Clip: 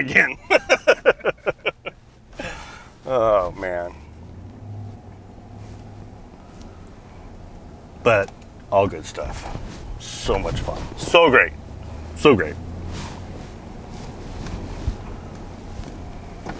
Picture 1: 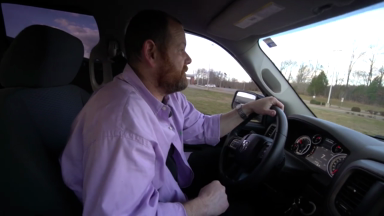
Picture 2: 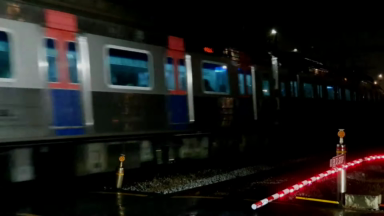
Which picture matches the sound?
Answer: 1